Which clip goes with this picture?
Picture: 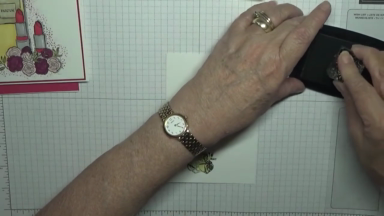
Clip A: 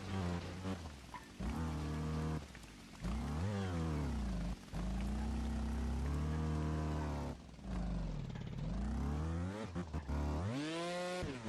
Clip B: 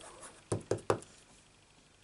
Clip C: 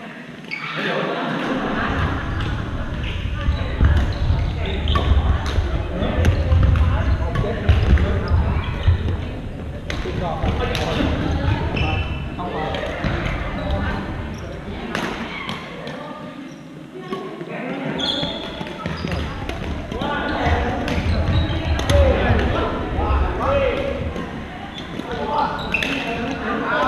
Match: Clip B